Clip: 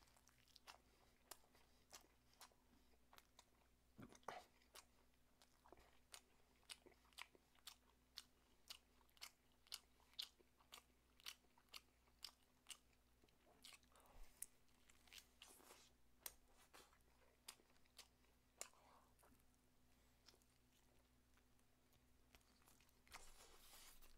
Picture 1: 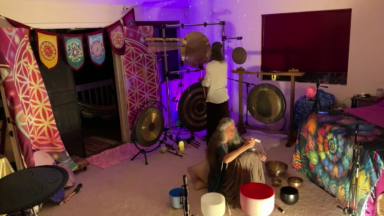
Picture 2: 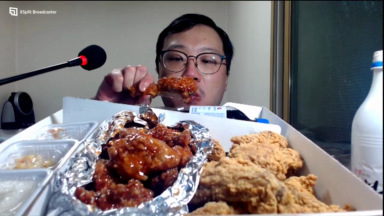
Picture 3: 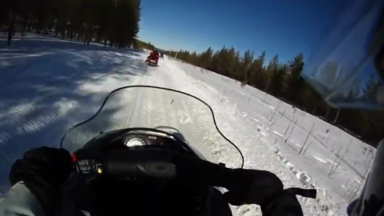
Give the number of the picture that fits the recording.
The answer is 2